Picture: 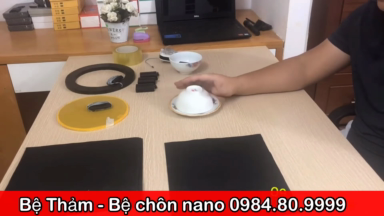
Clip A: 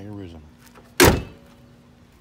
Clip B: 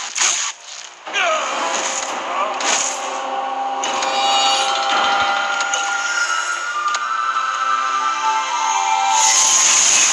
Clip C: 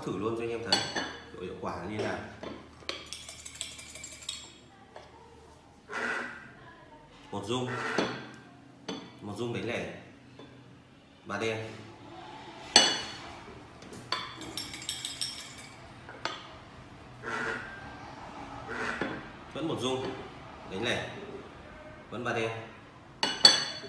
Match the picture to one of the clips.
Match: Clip C